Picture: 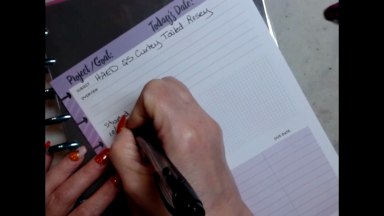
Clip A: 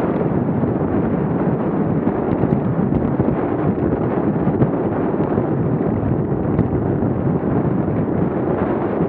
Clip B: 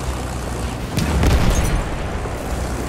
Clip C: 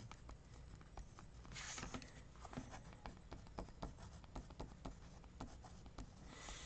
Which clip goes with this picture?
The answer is C